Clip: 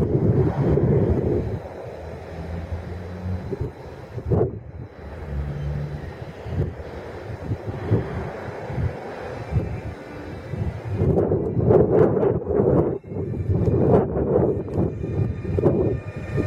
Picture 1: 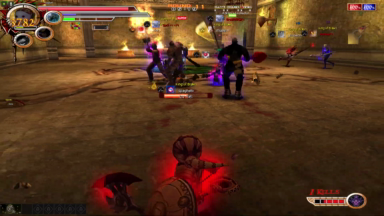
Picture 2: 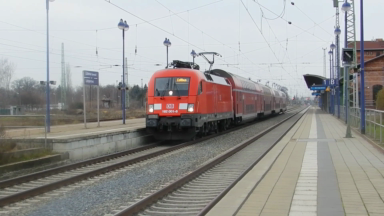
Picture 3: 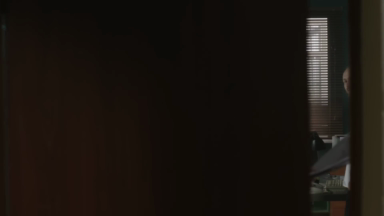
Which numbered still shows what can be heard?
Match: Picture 2